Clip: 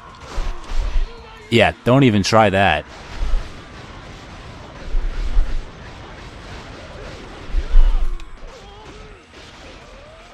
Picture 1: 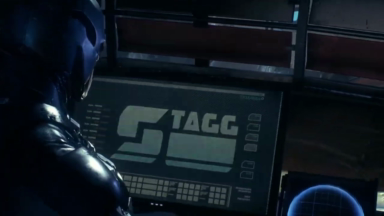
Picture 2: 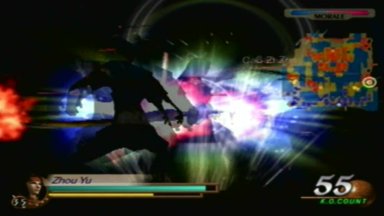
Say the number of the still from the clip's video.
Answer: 2